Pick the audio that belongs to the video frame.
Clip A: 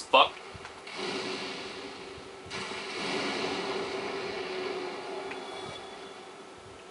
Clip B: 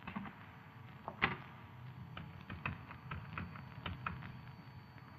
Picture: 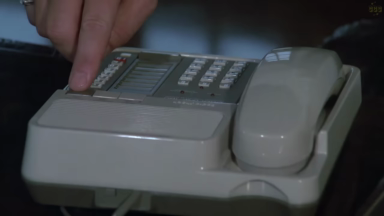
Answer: B